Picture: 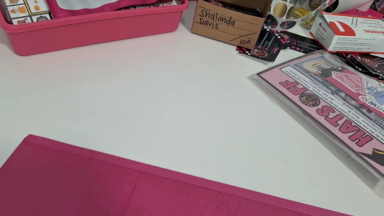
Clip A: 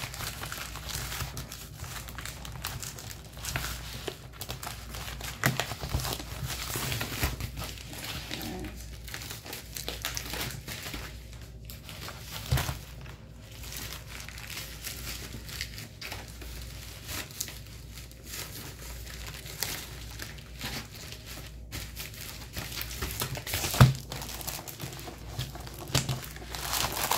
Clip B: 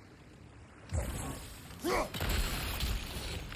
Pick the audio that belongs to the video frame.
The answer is A